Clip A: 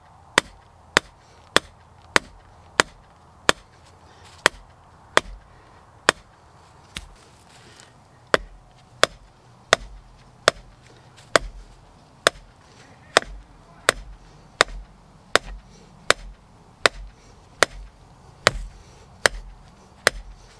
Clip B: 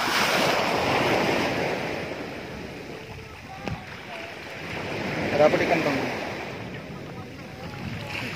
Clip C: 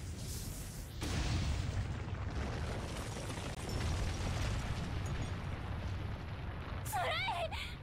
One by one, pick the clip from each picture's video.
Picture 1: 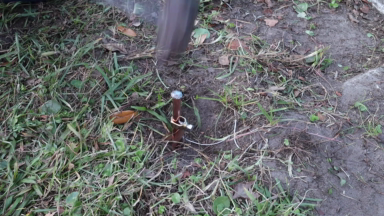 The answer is A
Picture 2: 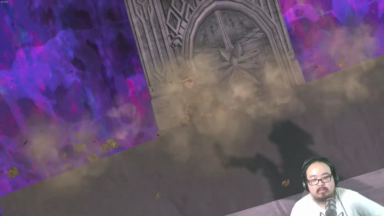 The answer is C